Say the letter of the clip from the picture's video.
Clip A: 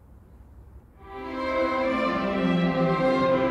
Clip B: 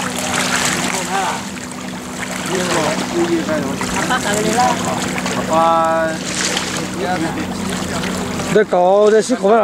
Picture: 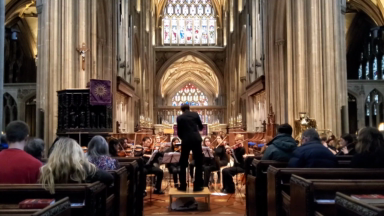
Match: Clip A